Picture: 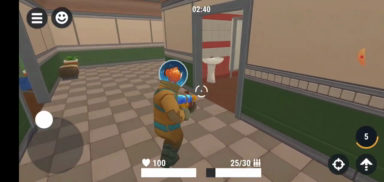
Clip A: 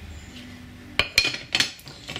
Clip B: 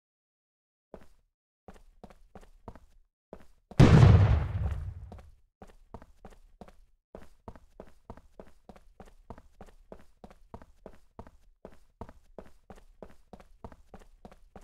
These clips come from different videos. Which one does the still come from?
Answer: B